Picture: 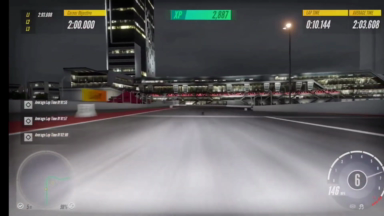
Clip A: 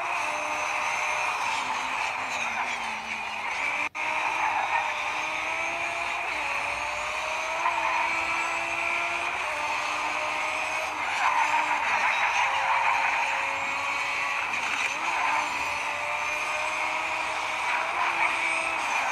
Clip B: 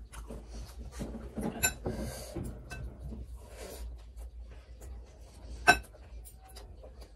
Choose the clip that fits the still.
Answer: A